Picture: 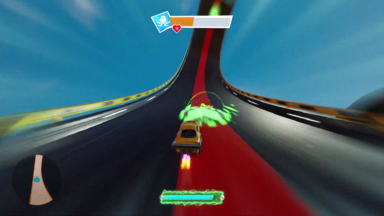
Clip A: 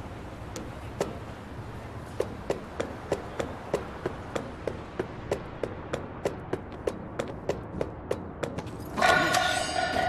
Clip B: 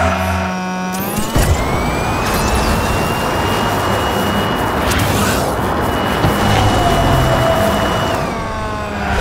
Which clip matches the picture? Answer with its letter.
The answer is B